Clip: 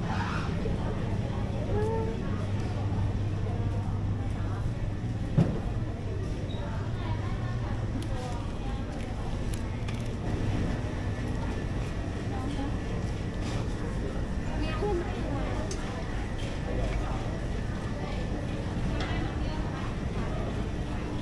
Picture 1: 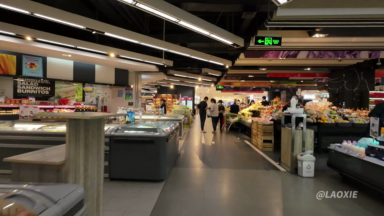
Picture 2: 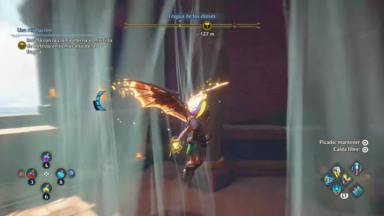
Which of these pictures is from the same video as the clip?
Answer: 1